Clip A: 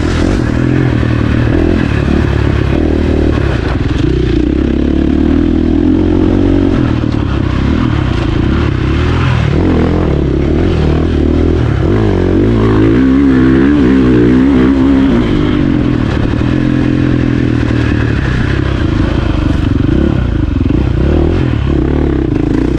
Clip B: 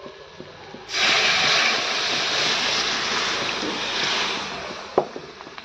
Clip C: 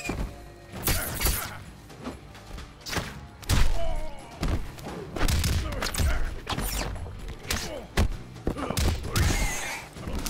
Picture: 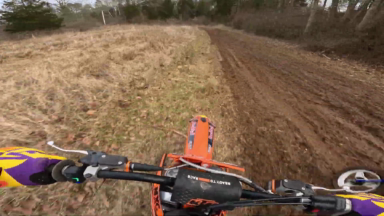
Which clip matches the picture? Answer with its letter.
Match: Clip A